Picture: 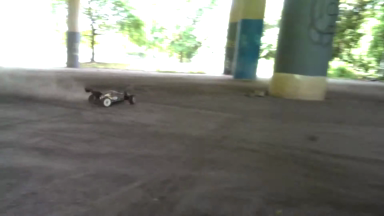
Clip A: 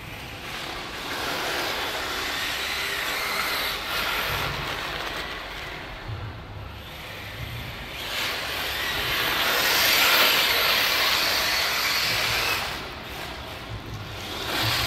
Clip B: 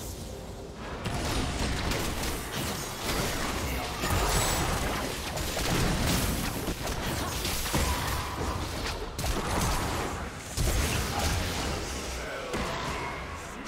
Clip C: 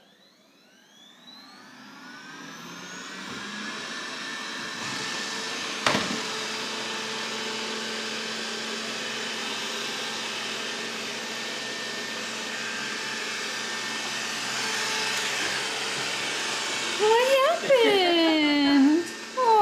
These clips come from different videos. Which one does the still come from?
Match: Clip A